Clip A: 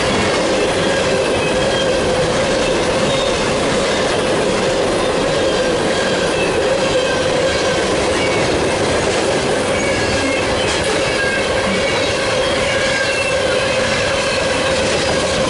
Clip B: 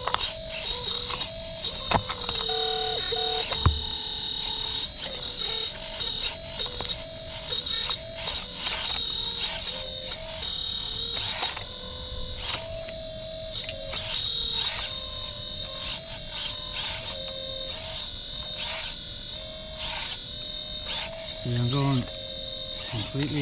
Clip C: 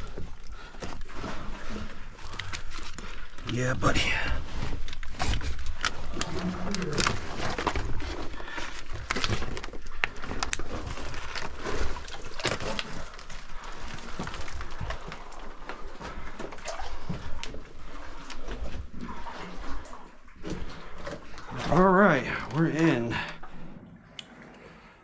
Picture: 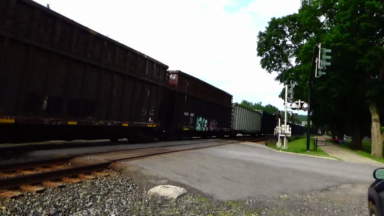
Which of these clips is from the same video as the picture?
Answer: A